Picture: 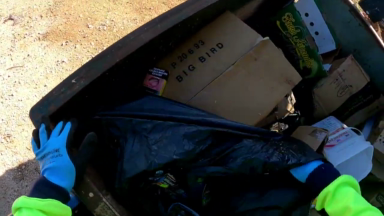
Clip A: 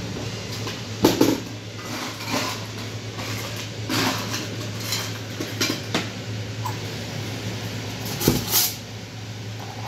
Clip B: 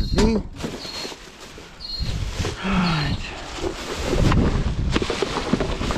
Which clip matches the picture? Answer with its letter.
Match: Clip B